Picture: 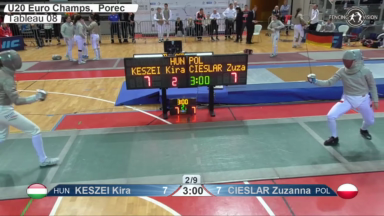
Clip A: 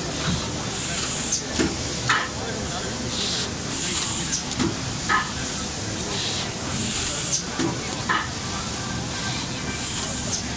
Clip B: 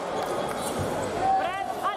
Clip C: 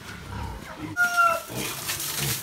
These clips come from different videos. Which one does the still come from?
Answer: B